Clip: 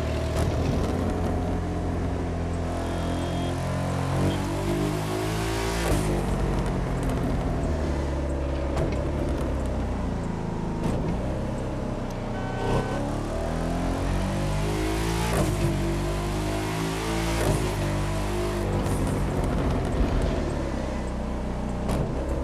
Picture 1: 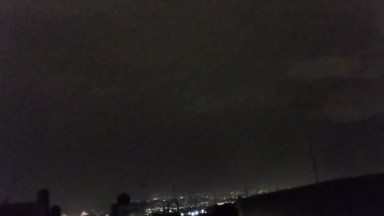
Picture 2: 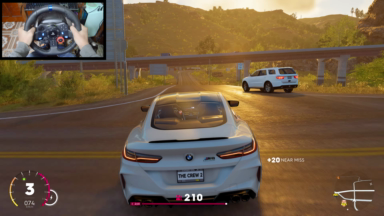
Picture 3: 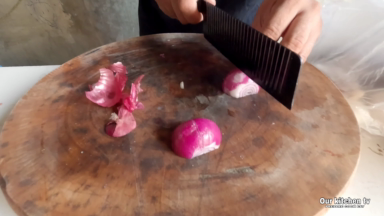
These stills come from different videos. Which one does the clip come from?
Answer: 2